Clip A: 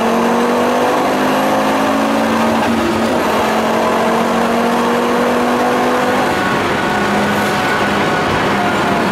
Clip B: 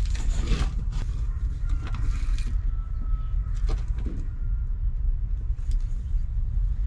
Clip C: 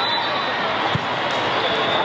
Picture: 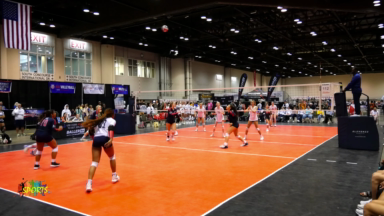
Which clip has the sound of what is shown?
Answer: C